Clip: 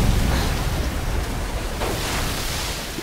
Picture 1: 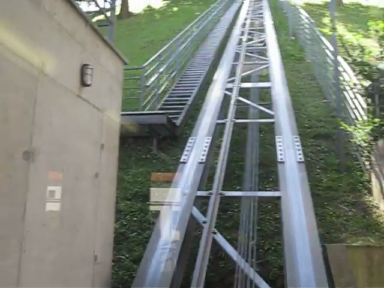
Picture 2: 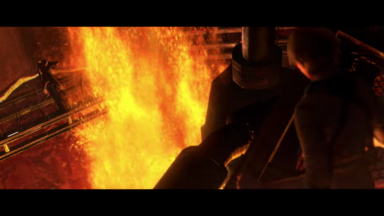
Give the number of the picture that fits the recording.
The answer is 2